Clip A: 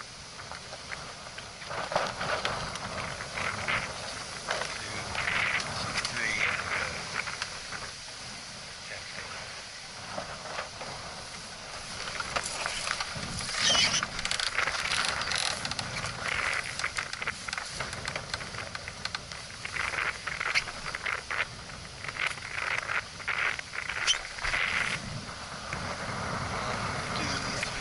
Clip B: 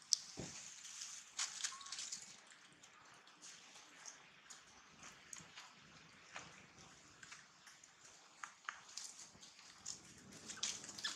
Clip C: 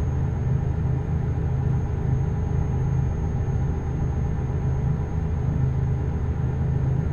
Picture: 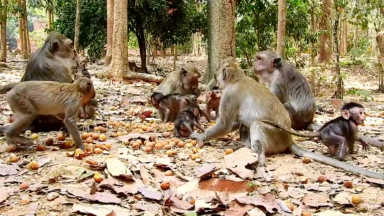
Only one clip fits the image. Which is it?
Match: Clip B